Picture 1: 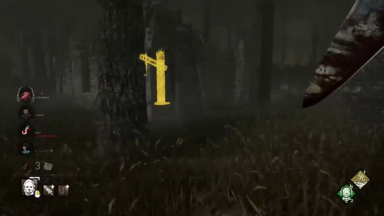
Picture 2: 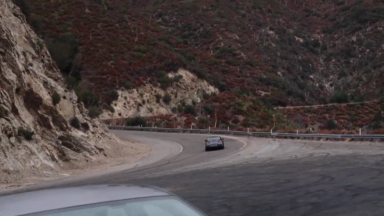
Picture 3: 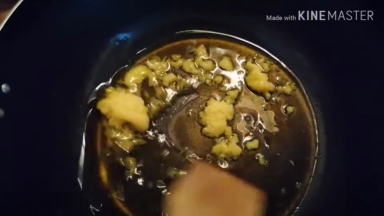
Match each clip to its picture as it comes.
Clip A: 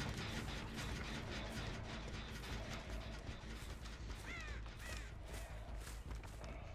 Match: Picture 1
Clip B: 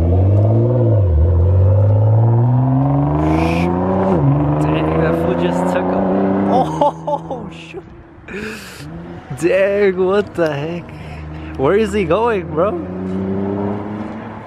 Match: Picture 2